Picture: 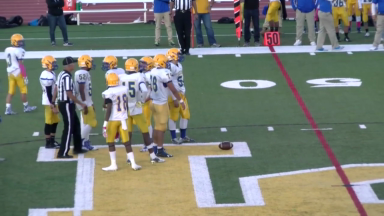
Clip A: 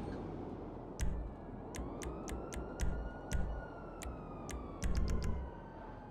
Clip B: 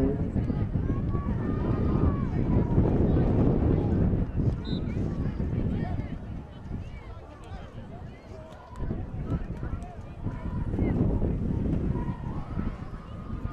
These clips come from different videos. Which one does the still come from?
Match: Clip B